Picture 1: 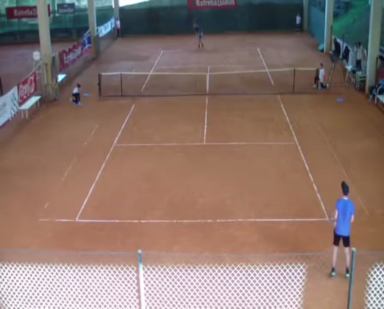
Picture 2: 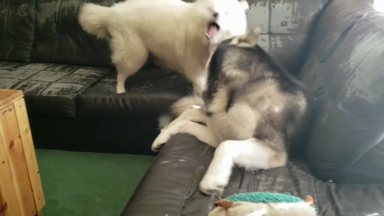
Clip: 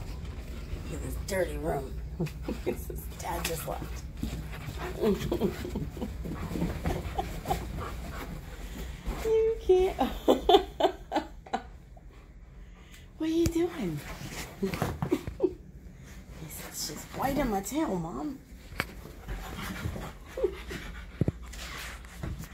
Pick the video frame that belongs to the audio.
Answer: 2